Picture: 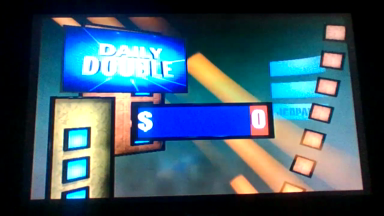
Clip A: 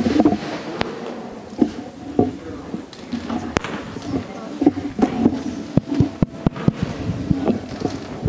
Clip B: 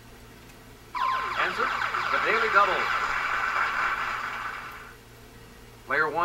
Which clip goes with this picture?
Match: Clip B